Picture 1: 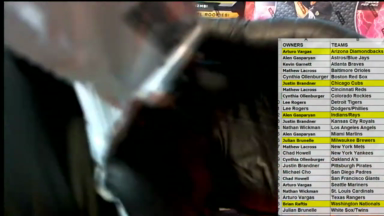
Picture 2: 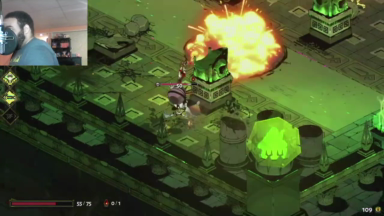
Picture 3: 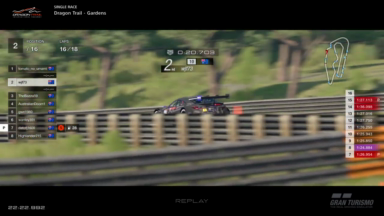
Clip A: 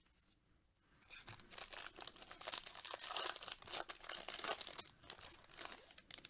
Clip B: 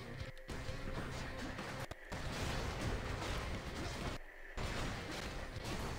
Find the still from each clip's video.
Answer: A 1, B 2